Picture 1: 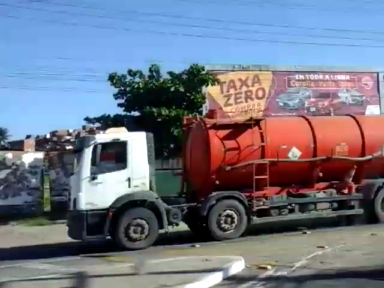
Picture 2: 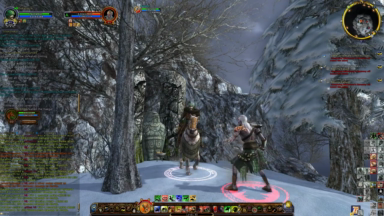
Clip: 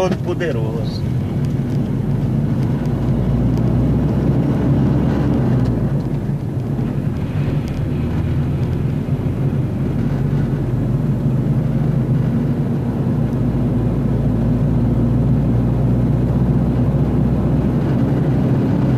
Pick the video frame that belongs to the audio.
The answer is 1